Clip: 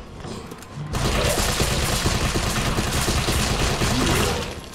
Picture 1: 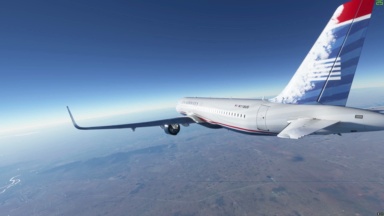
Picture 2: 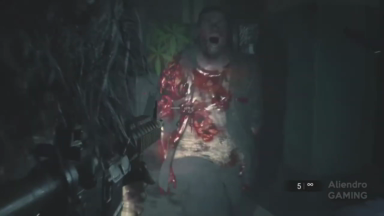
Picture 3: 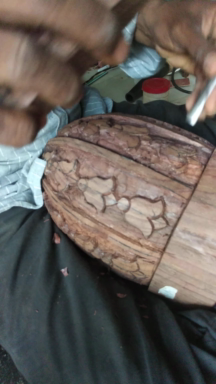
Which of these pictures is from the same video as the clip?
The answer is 2